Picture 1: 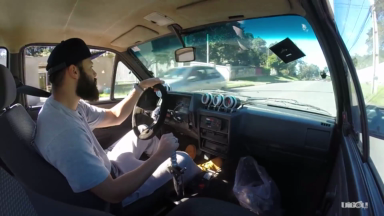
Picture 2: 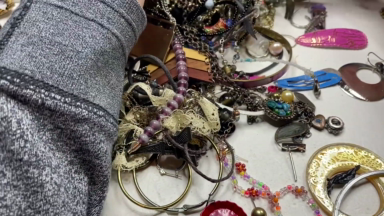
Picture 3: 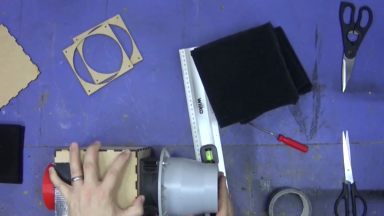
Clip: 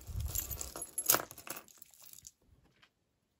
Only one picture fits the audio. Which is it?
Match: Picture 2